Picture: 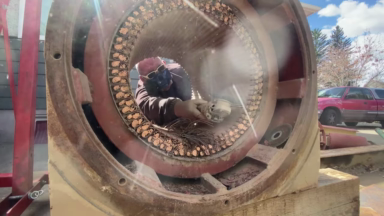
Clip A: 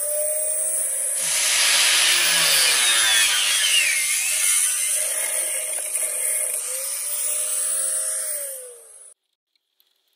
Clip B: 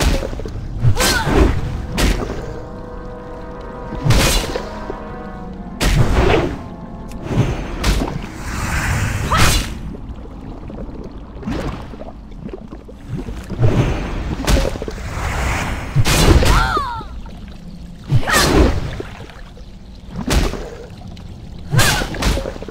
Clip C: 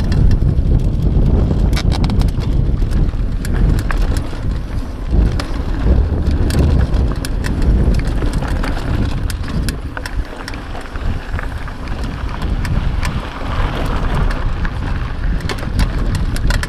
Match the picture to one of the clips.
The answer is A